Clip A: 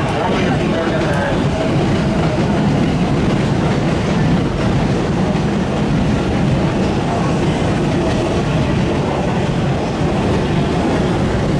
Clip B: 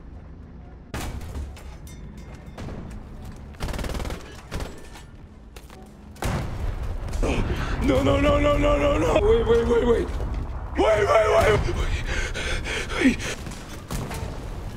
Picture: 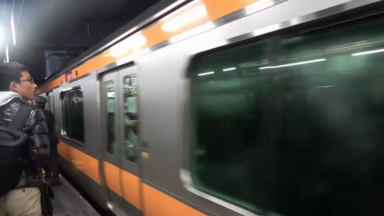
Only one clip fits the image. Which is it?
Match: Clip A